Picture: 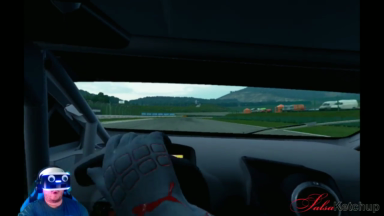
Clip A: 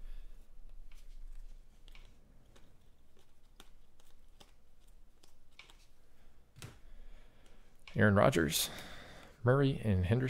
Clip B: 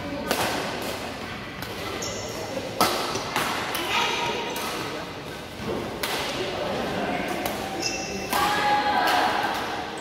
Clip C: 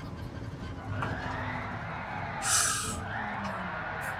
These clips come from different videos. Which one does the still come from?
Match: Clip C